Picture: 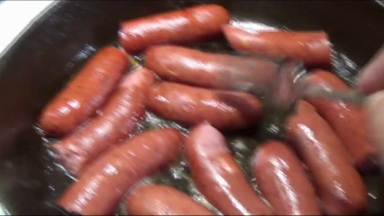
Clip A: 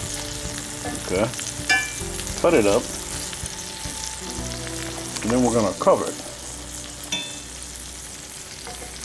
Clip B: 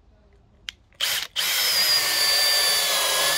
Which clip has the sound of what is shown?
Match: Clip A